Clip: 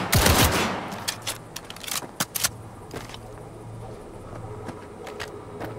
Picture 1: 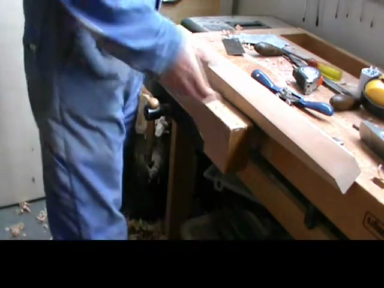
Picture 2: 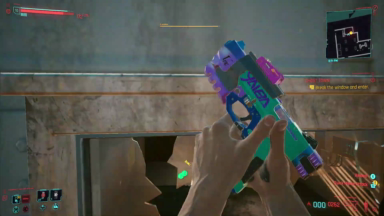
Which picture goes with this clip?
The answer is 2